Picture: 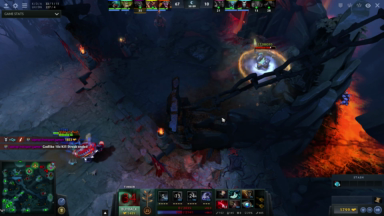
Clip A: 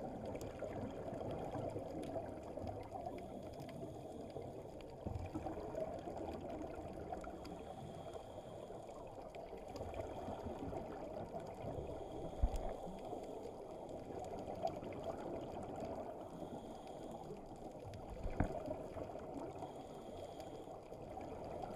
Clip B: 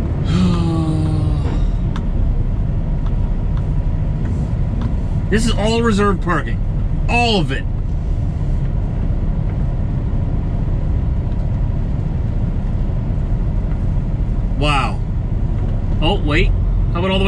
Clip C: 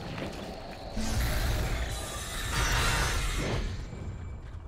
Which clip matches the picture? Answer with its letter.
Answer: C